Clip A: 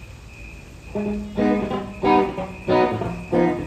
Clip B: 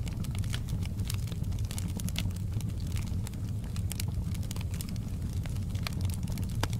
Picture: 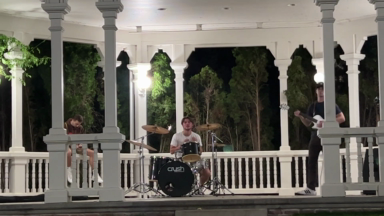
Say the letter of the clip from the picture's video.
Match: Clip A